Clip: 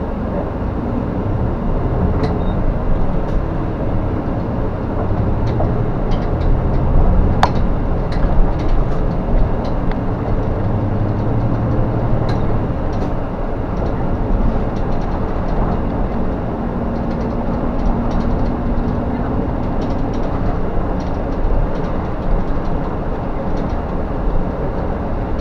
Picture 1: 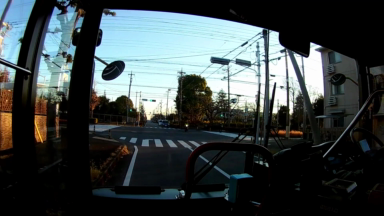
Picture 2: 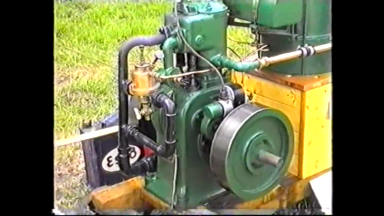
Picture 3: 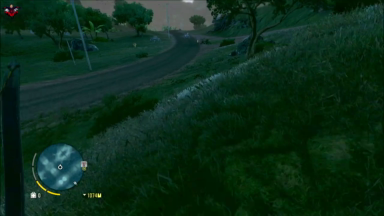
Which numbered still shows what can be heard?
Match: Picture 1